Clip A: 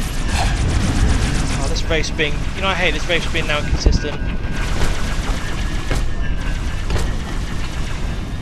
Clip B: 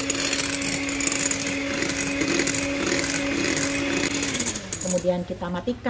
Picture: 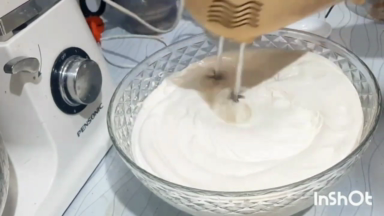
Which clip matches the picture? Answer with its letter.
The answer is B